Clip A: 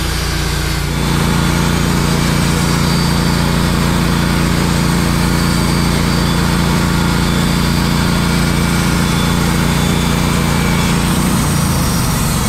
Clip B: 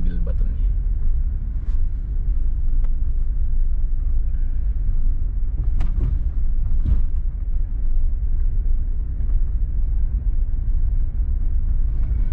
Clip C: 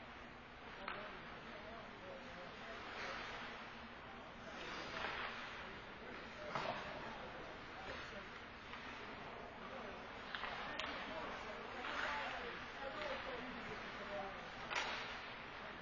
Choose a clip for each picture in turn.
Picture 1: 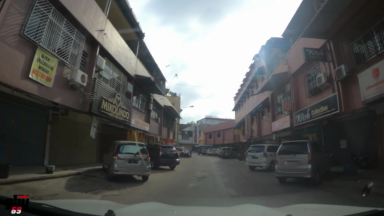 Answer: B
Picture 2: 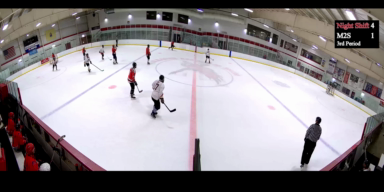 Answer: C